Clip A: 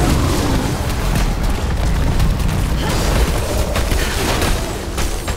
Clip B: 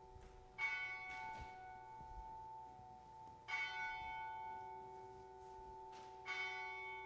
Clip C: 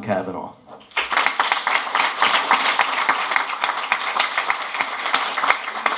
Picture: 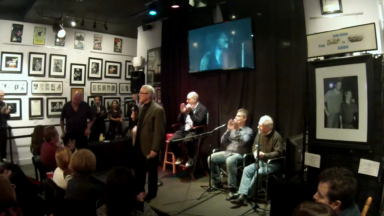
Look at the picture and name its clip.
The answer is C